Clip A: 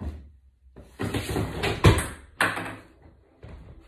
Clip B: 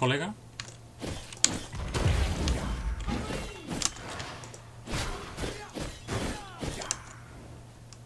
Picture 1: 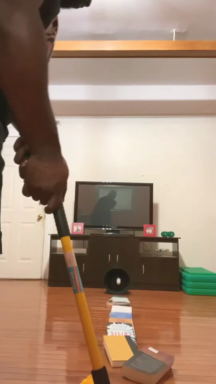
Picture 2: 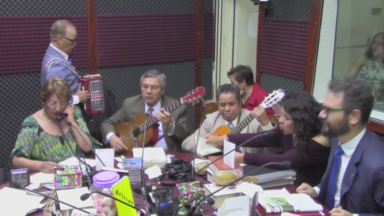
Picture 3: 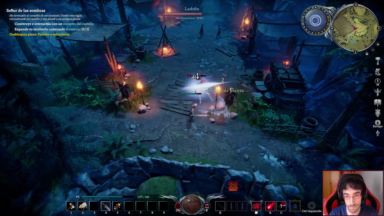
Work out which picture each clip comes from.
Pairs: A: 1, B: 3